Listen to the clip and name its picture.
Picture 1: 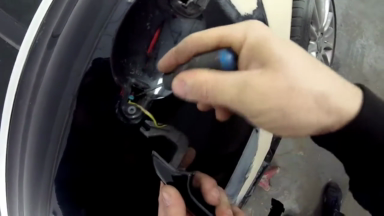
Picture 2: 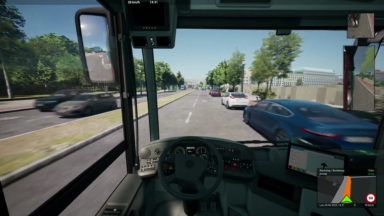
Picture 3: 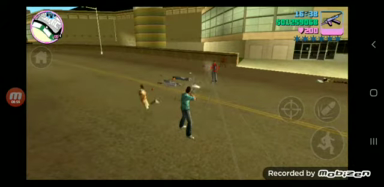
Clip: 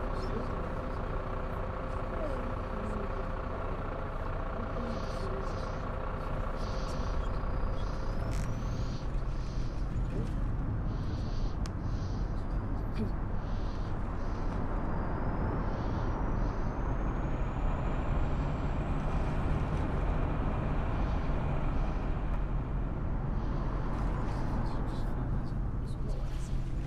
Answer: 2